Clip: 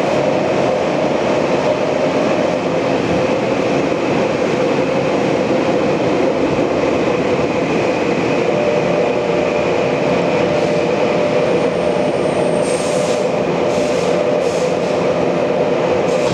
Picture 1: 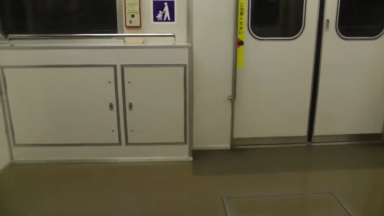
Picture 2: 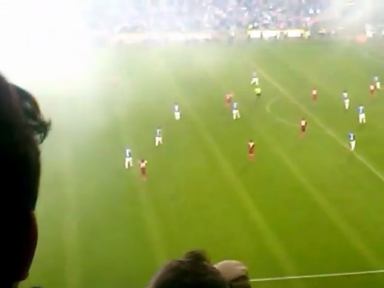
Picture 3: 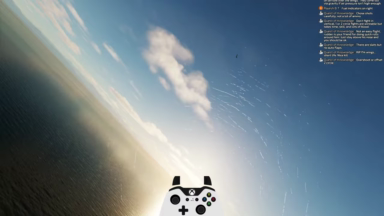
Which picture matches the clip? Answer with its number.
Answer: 1